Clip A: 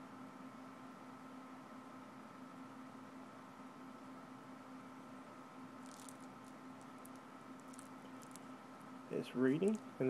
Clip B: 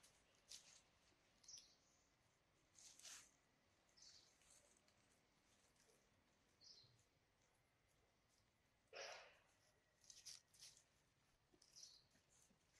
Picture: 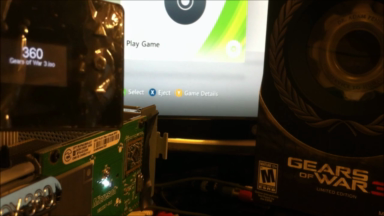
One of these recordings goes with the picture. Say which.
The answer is A